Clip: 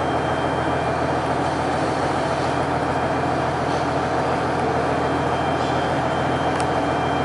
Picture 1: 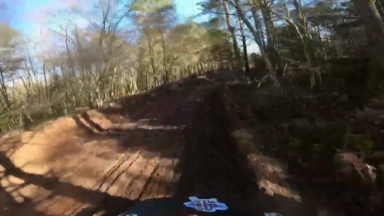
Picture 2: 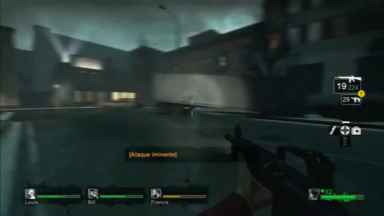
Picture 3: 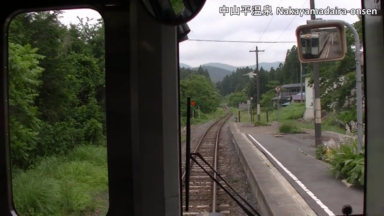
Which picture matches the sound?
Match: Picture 3